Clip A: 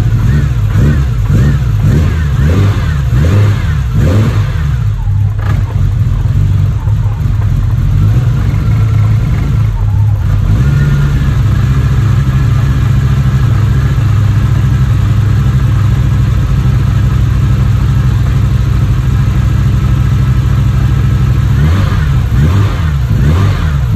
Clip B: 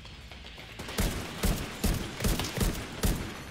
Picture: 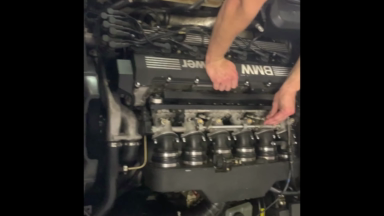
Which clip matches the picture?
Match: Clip A